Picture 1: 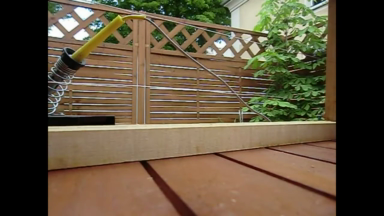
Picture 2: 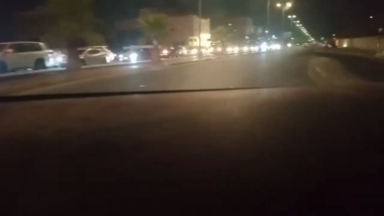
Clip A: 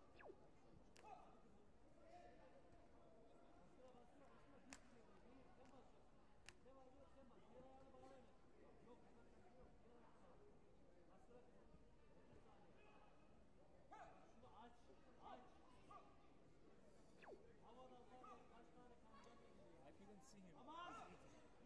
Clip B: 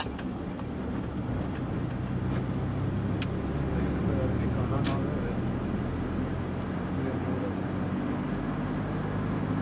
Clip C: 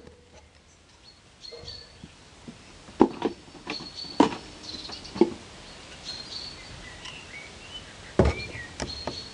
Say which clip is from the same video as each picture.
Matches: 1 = C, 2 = B